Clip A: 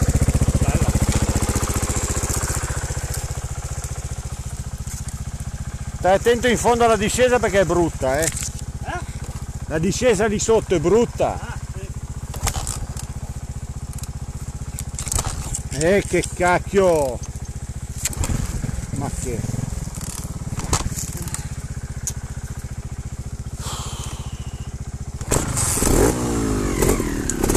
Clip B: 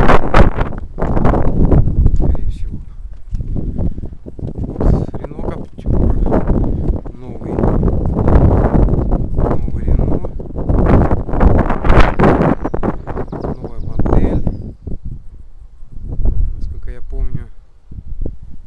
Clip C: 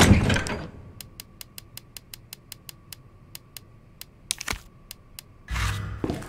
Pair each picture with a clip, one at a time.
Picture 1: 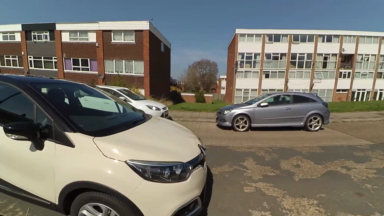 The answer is B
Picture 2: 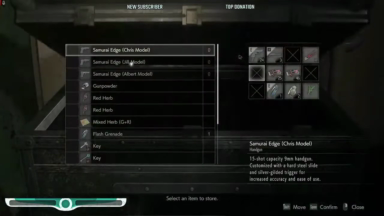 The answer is C